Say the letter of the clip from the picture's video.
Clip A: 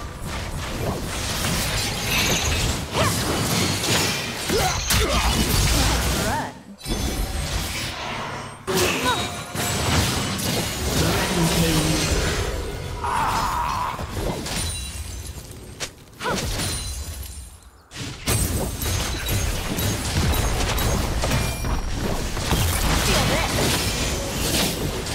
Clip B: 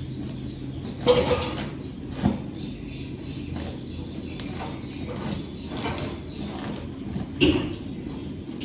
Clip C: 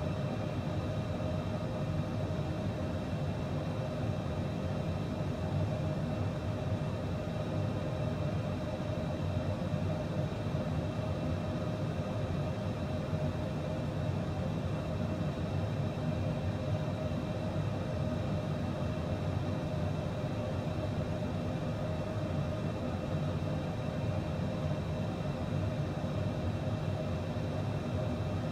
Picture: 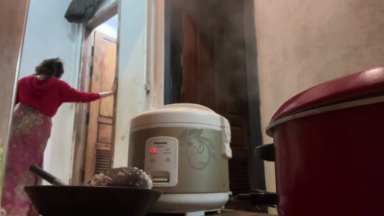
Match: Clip B